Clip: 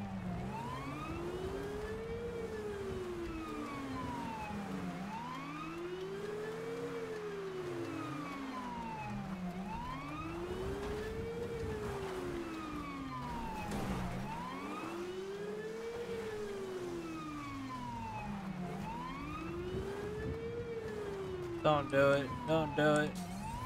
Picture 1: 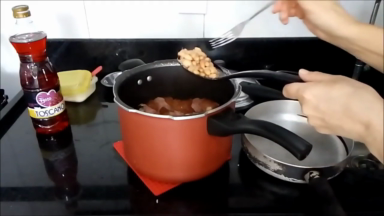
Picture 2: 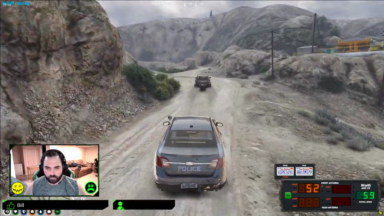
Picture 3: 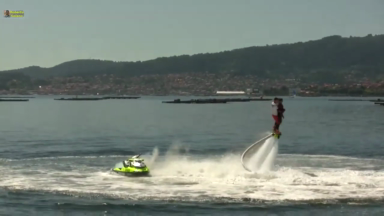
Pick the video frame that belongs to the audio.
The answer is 2